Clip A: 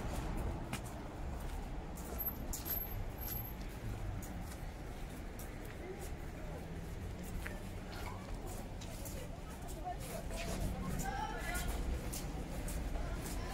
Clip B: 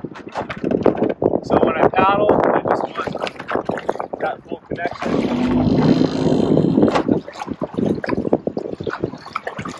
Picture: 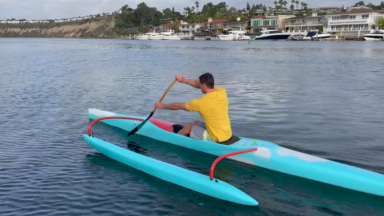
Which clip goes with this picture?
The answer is B